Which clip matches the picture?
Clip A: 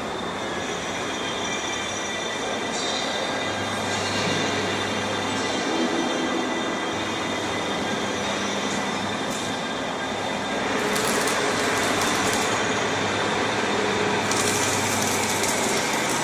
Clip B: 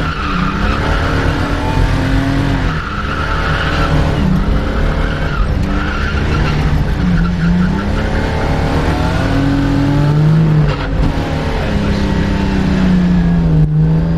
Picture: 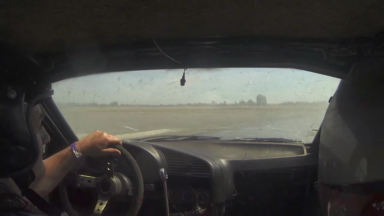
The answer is B